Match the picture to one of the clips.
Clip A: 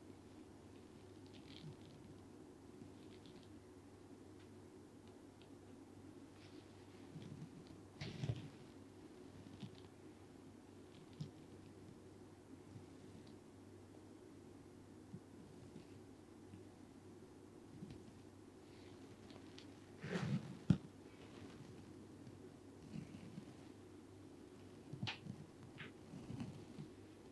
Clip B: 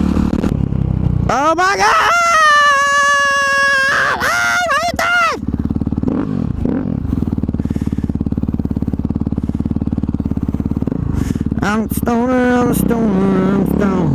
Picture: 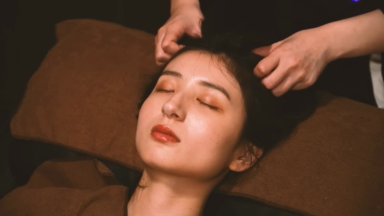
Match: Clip A